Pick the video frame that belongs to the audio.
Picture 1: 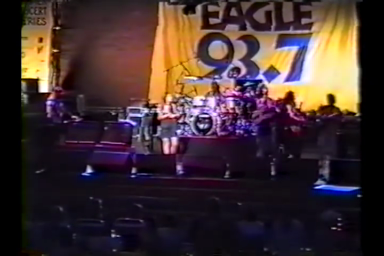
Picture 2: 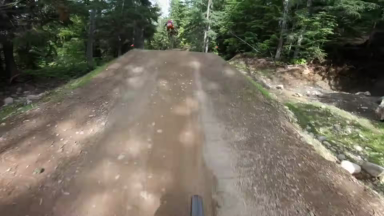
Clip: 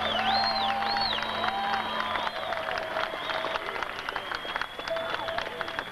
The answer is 1